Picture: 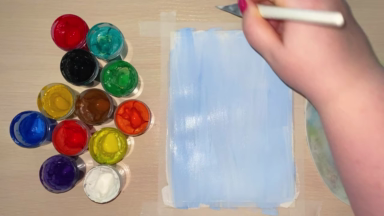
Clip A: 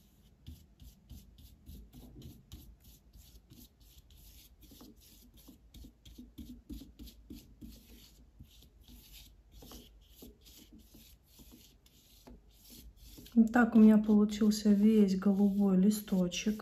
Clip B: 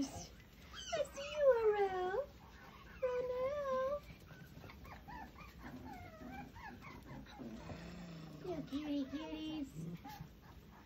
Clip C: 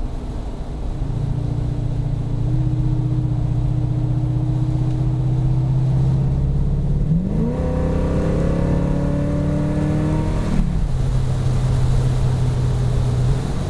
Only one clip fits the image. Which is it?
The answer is A